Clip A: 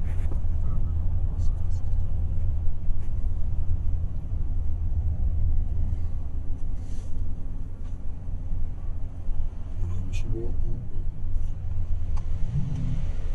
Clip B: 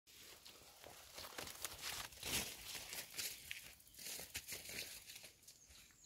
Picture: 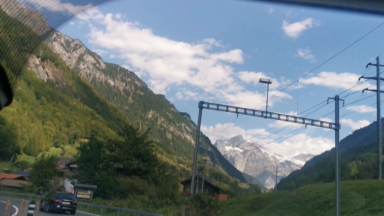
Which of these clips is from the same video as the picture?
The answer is A